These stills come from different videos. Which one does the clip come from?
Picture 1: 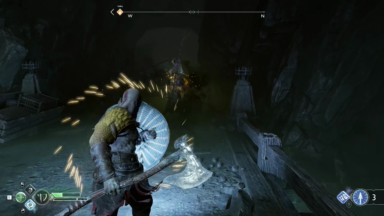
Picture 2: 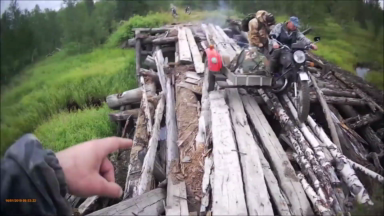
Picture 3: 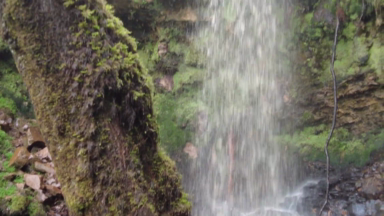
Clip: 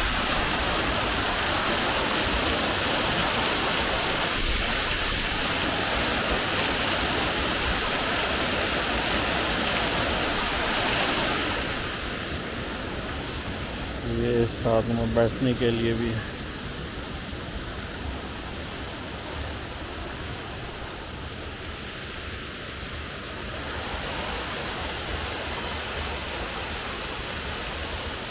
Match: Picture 3